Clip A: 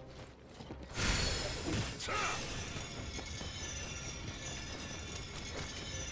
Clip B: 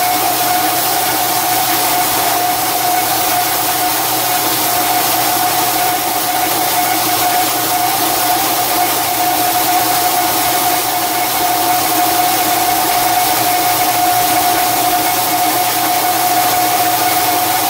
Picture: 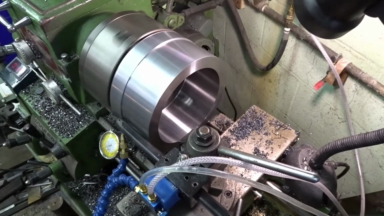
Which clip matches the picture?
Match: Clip B